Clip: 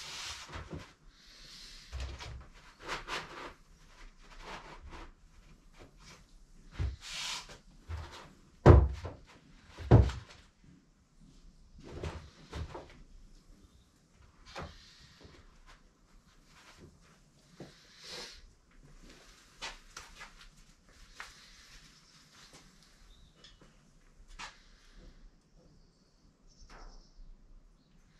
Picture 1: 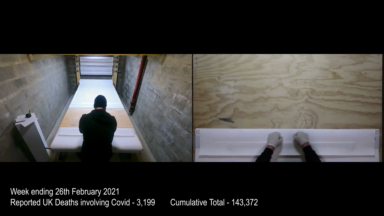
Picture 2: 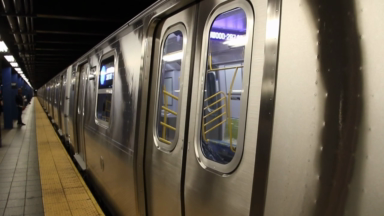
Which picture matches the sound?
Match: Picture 1